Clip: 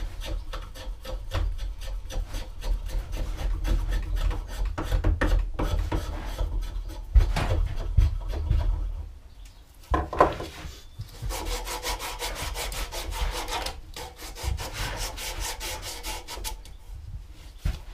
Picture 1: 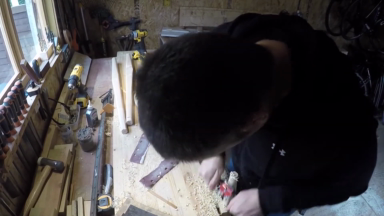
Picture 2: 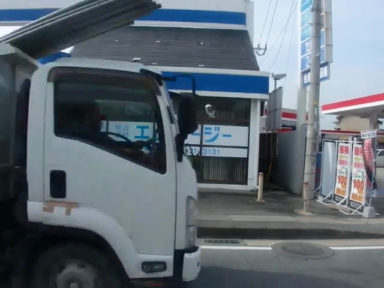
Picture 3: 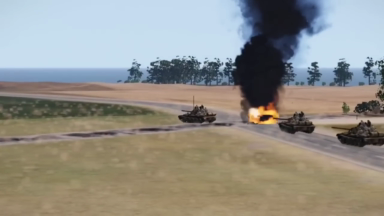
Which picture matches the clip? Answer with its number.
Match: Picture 1